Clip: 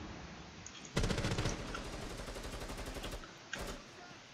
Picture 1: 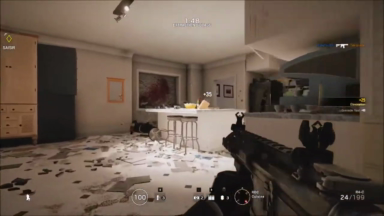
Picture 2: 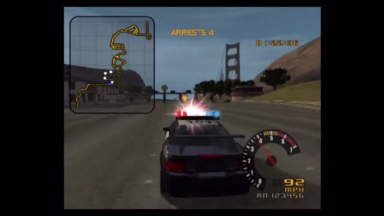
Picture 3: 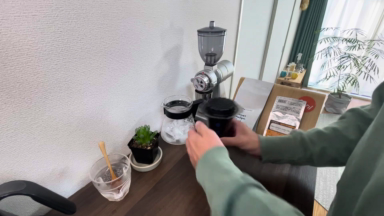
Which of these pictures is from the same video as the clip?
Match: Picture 1